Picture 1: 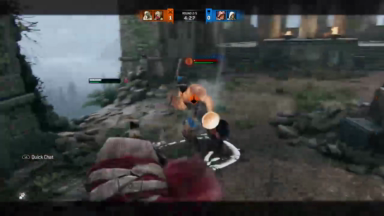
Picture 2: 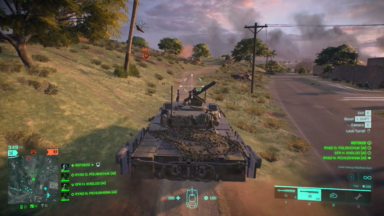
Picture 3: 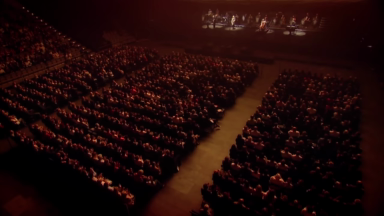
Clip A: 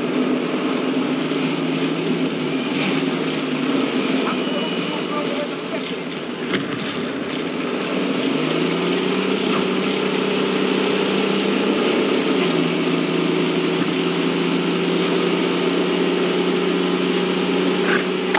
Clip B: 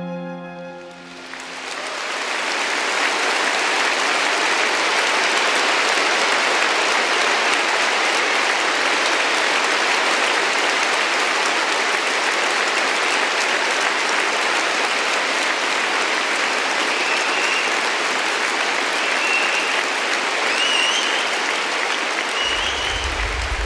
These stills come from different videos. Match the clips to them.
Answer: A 2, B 3